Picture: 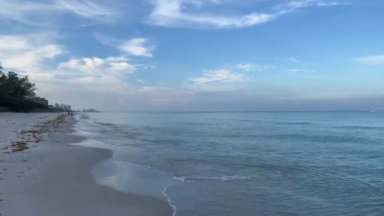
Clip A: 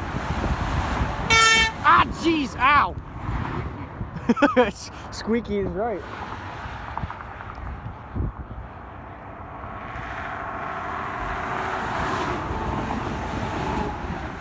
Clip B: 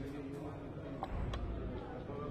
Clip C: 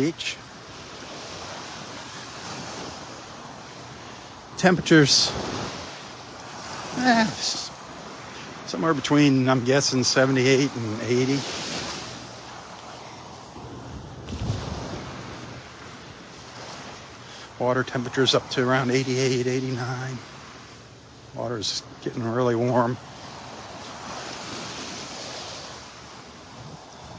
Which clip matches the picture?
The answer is C